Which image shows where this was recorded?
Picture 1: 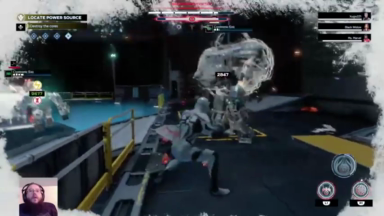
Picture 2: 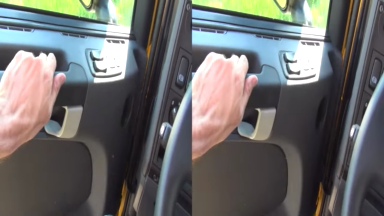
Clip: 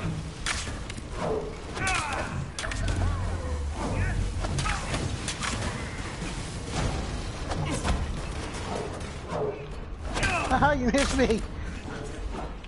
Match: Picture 1